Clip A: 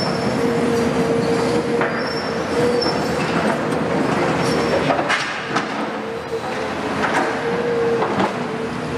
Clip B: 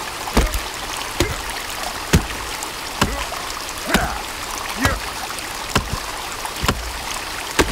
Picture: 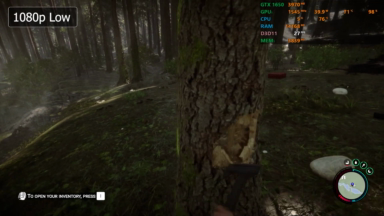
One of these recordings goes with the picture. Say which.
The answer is B